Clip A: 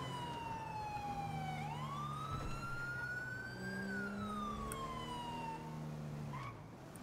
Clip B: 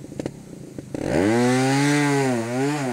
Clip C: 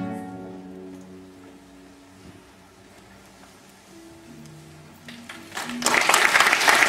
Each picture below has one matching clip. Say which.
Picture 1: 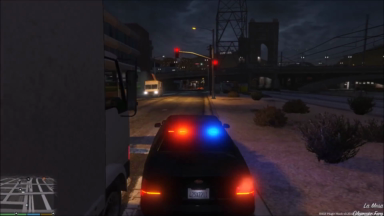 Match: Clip A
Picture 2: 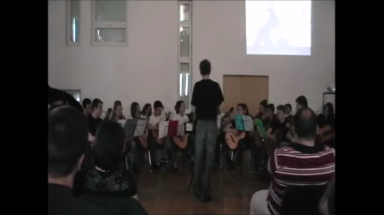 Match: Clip C